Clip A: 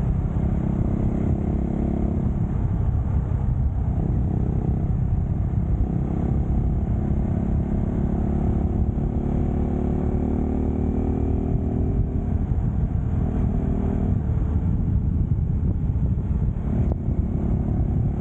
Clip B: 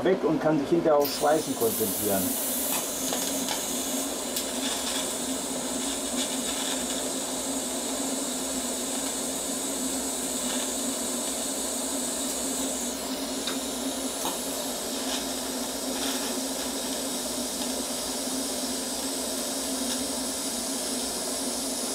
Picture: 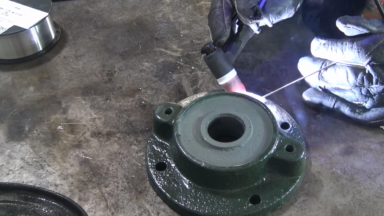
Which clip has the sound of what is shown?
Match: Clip B